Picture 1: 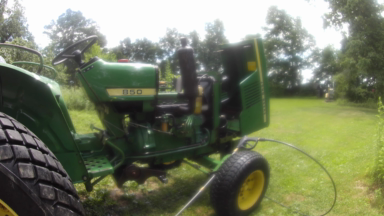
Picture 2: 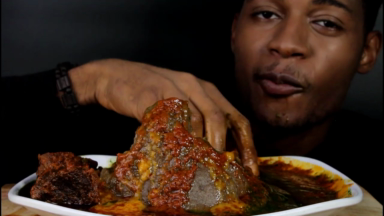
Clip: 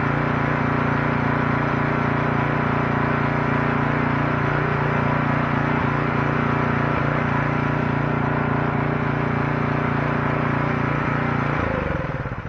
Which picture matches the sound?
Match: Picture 1